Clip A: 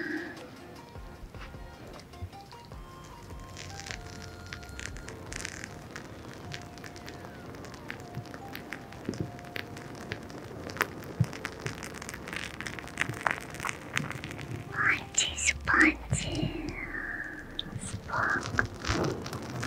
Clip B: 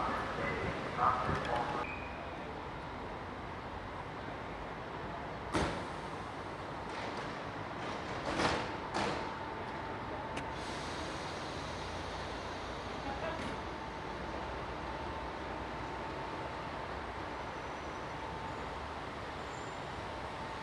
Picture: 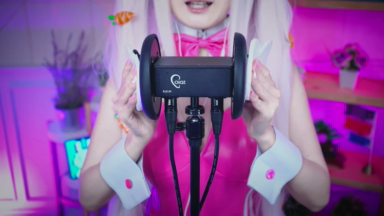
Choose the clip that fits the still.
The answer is A